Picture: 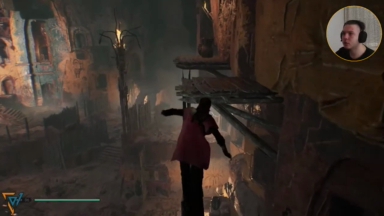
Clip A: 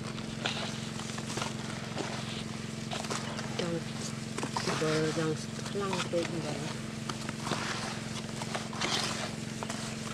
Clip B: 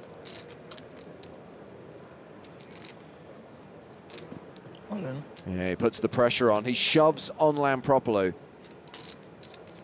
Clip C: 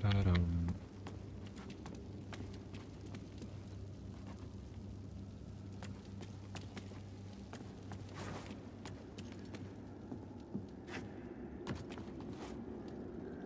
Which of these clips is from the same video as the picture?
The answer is C